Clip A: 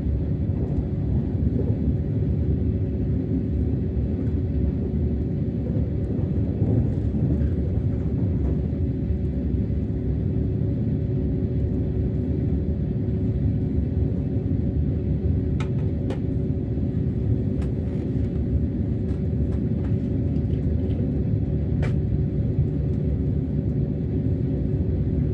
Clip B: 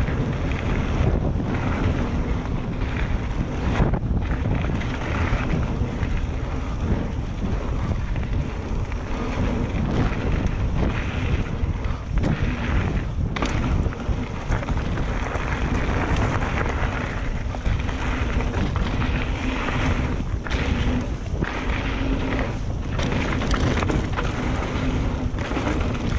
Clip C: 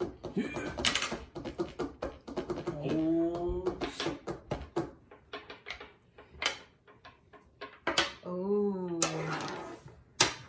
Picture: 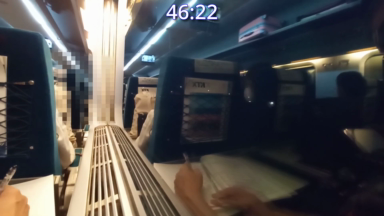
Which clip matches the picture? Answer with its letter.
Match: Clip A